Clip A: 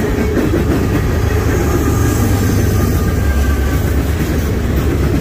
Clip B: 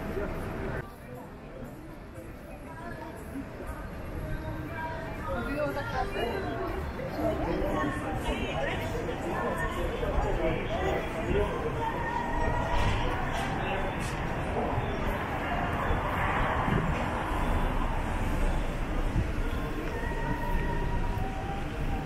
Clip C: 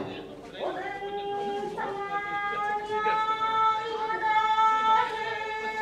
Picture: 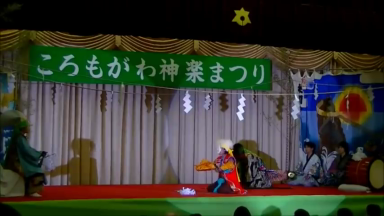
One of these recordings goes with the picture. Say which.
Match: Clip C